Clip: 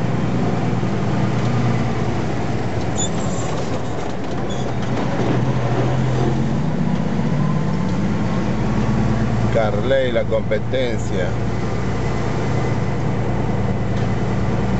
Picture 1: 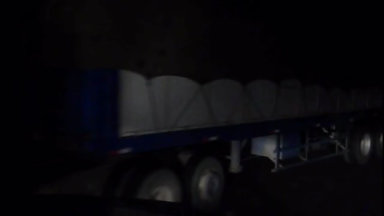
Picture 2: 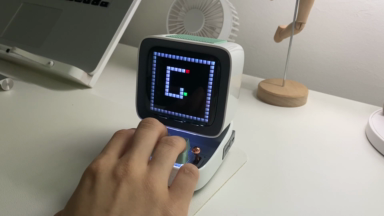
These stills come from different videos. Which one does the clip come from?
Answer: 1